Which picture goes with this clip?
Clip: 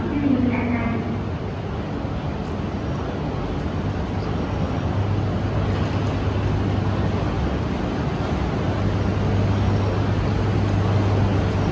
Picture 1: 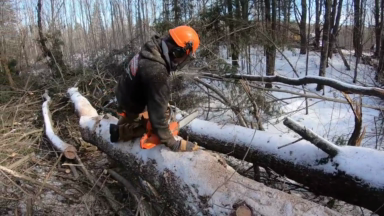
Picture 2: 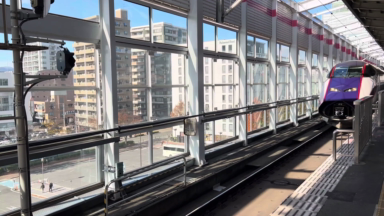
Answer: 2